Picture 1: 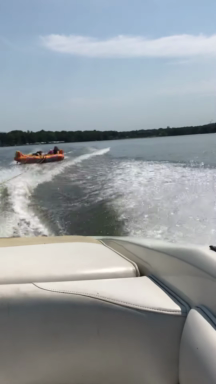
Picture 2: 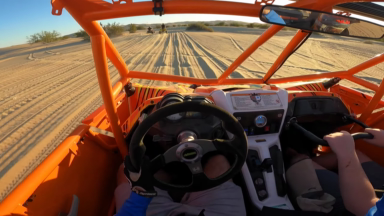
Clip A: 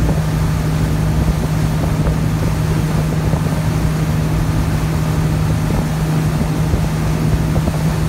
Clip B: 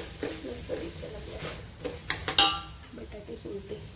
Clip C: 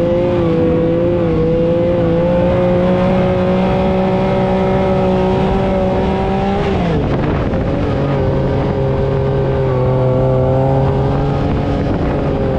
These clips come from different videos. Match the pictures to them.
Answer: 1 A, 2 C